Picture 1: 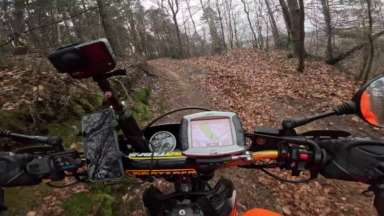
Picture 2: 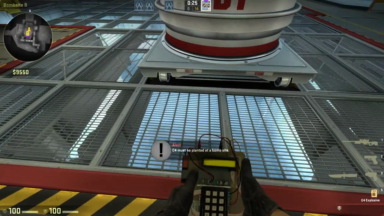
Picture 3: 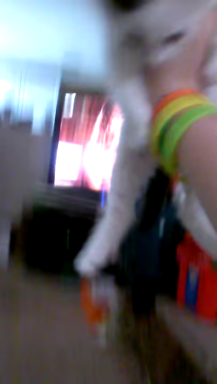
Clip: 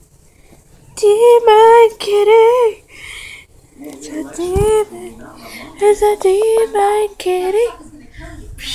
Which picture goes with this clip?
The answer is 3